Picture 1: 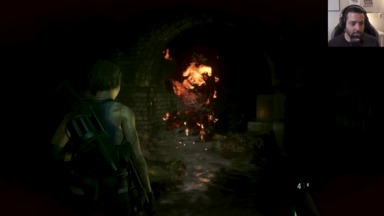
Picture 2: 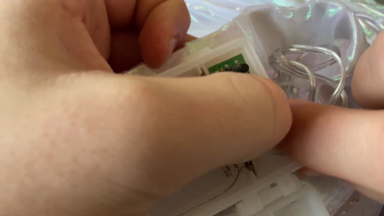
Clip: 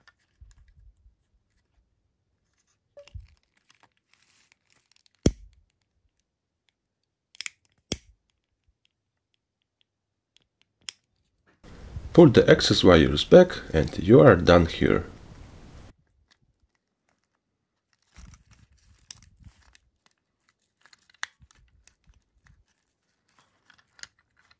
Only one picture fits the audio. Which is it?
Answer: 2